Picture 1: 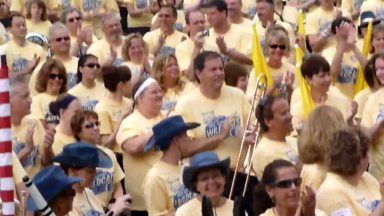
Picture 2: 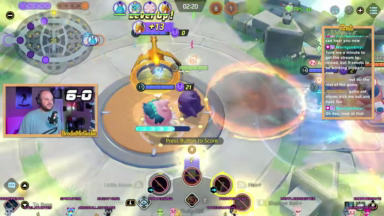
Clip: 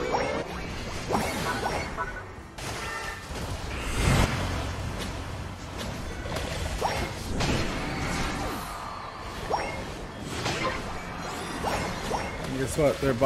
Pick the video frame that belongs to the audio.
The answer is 2